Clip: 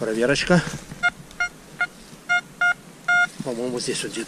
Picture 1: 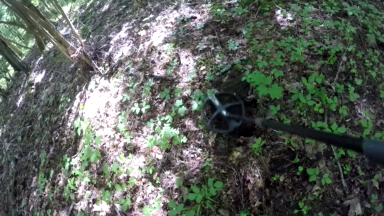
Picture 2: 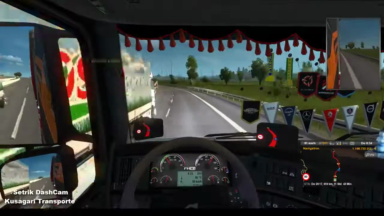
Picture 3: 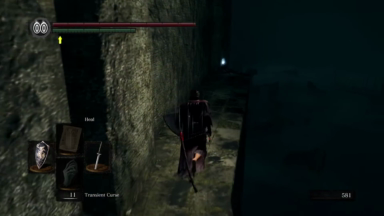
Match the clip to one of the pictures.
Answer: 1